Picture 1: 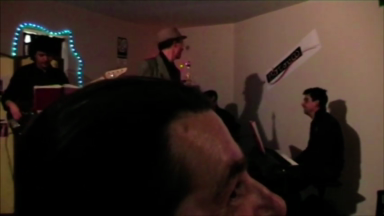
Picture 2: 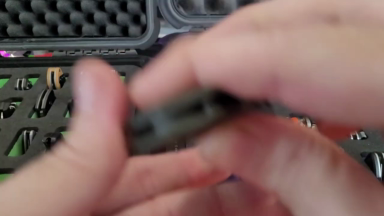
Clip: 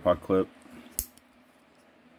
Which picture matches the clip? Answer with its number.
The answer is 2